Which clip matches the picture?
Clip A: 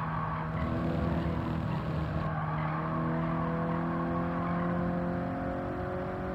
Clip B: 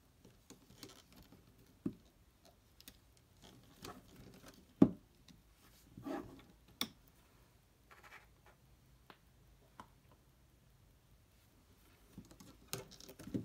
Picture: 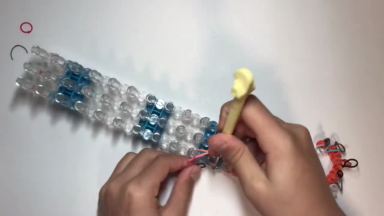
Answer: B